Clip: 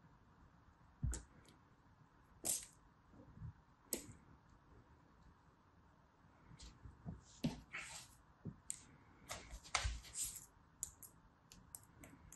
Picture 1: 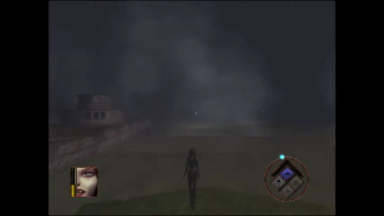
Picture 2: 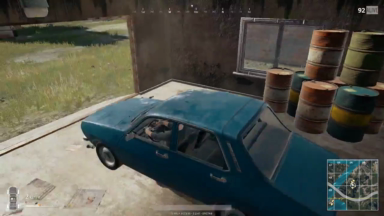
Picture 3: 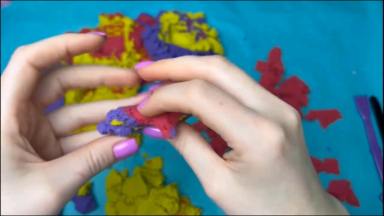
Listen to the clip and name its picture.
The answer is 3